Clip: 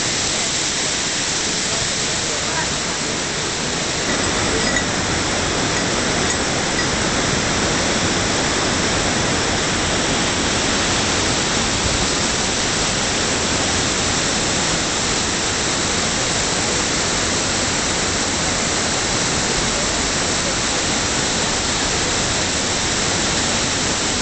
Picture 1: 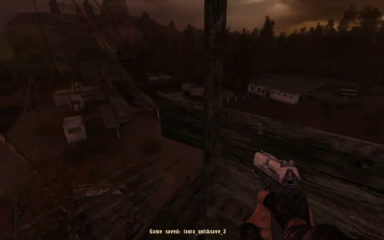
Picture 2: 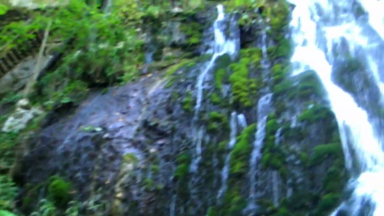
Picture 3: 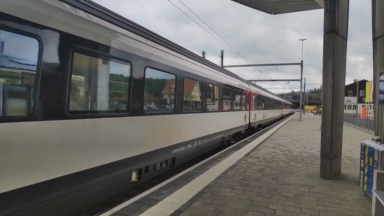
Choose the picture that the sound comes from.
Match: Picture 2